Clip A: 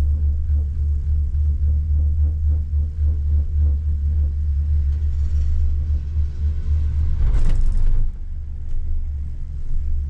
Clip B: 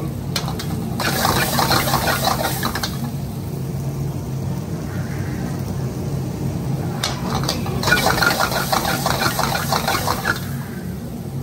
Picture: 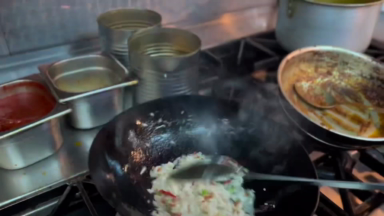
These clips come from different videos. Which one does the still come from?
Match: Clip B